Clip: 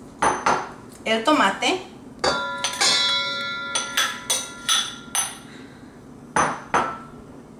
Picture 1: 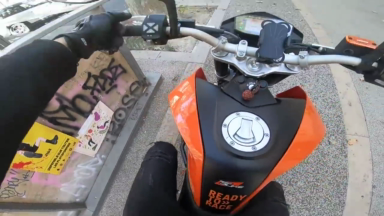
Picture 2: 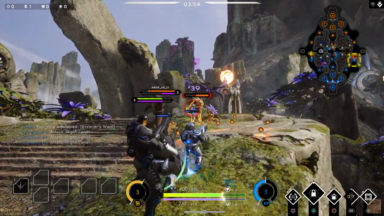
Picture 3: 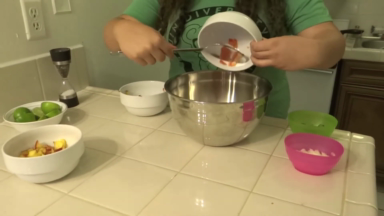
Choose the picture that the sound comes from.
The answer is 3